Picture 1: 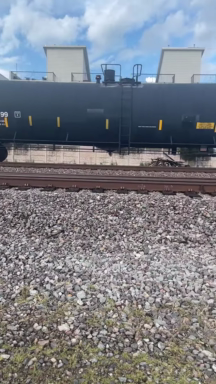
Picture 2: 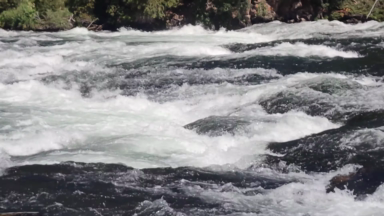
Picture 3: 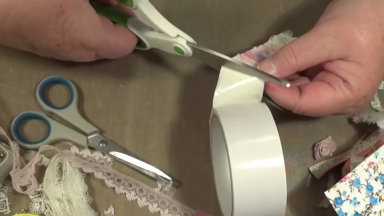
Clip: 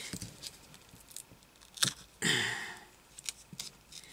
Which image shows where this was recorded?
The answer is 3